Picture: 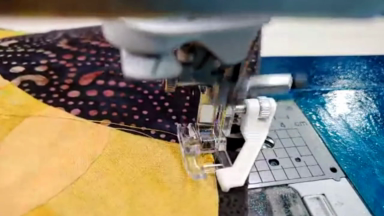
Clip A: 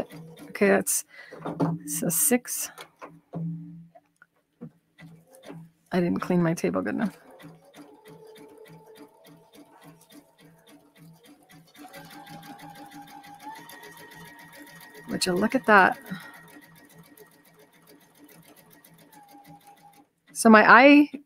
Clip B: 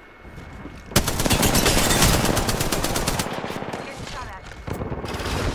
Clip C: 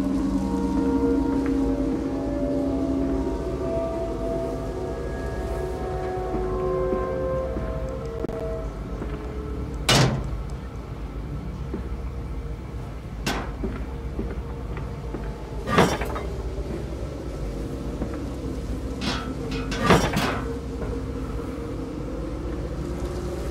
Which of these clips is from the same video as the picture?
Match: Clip A